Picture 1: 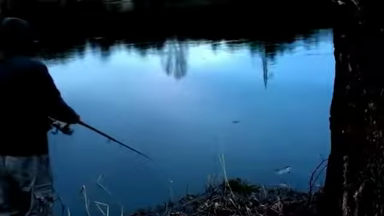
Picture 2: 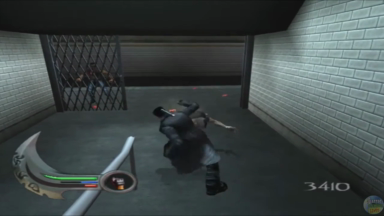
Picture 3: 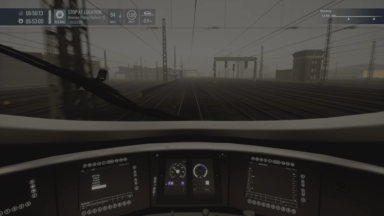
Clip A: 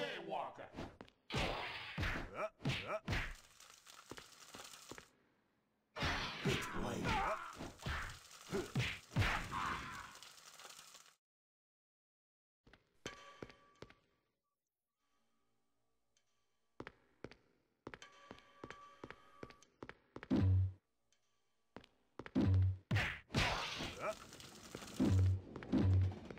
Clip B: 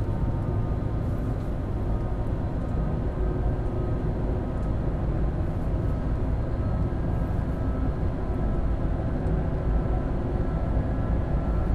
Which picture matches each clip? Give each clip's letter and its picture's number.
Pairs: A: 2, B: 3